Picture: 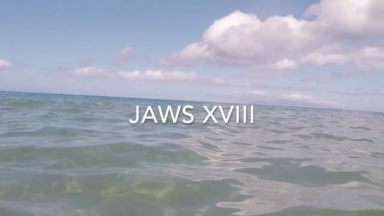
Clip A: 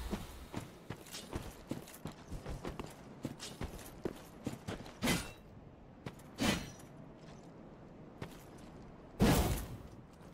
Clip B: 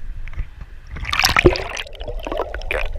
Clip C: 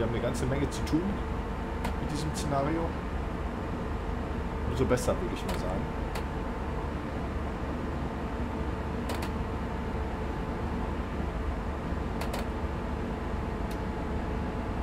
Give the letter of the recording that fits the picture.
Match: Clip B